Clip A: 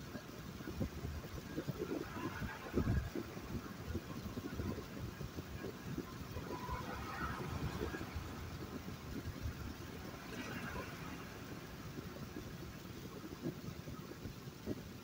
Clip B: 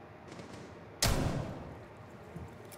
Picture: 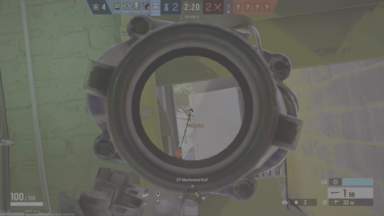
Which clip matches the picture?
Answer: B